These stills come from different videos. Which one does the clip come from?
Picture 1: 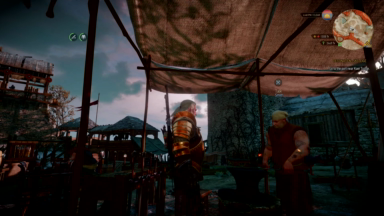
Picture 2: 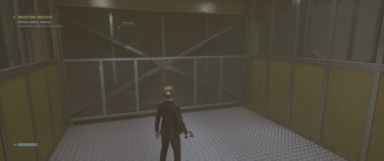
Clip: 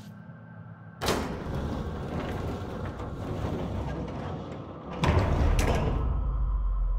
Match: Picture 2